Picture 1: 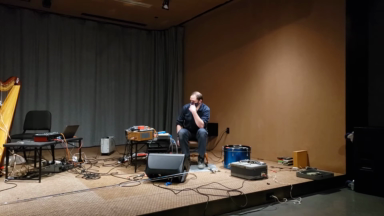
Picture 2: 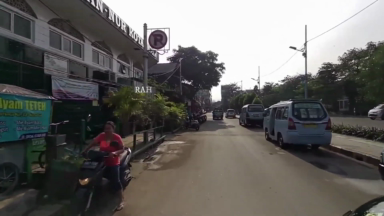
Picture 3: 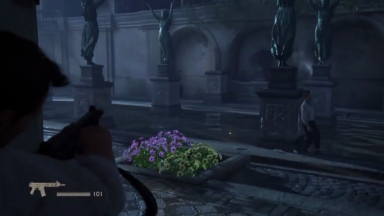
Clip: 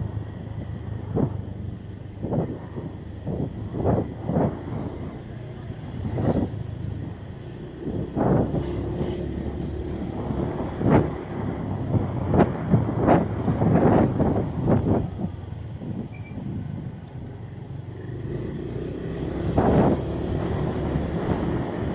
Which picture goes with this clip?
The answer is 2